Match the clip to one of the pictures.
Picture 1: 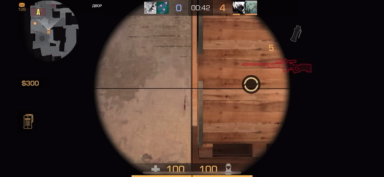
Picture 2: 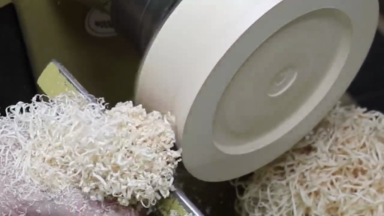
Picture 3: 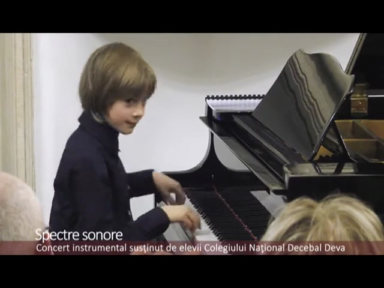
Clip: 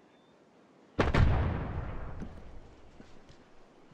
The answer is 1